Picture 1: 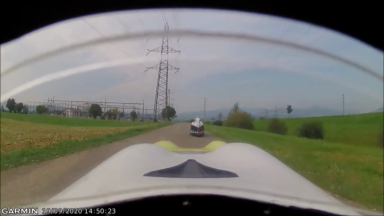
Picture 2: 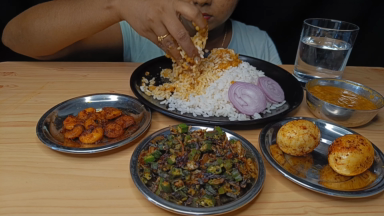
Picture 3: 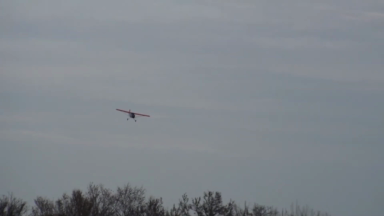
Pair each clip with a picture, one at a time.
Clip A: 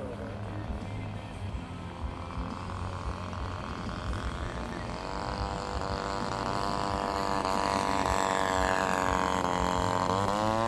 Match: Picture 3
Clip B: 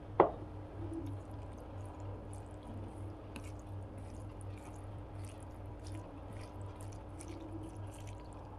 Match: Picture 2